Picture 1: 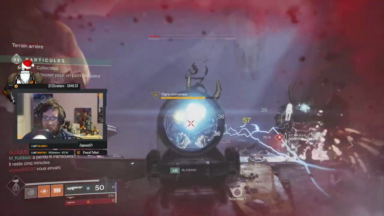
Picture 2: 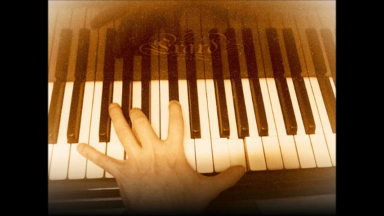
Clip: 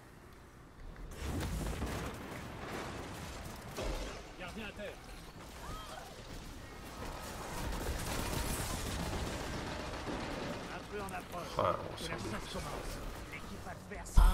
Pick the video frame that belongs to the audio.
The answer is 1